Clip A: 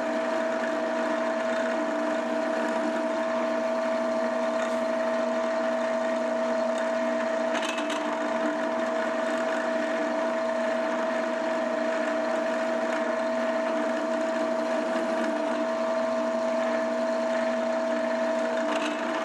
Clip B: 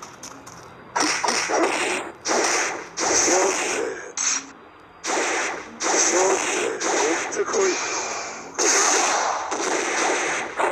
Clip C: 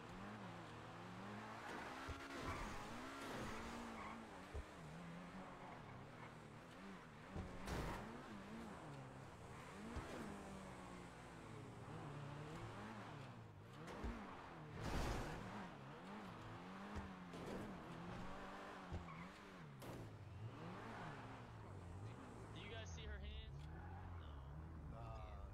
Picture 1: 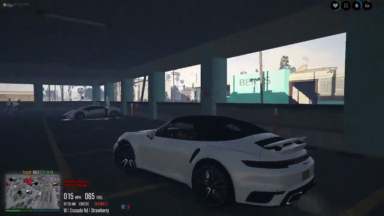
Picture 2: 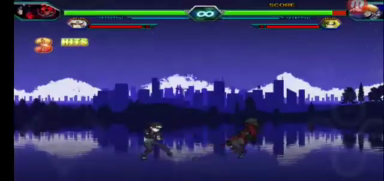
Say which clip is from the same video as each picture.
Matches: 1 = C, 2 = B